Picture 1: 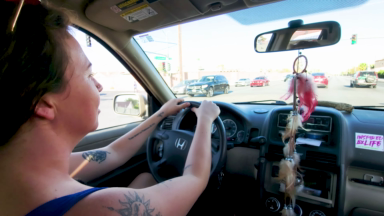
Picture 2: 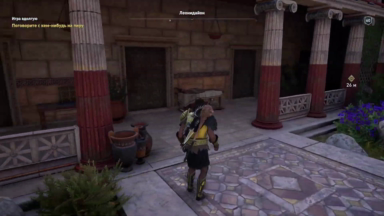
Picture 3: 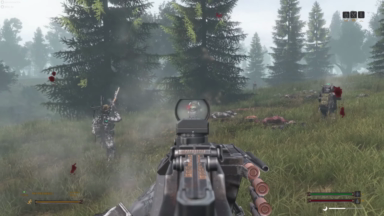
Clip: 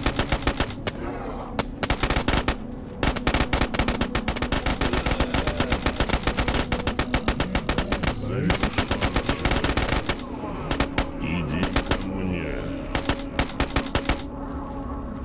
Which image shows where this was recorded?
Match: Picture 3